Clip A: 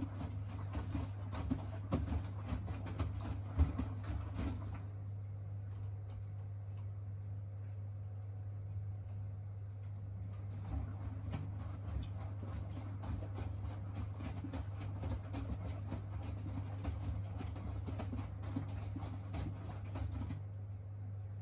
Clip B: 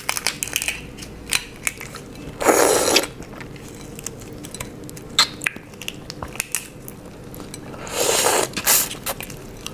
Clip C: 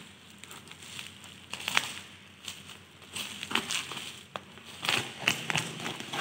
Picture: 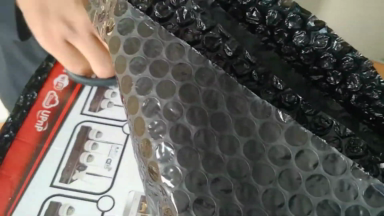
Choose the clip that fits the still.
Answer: C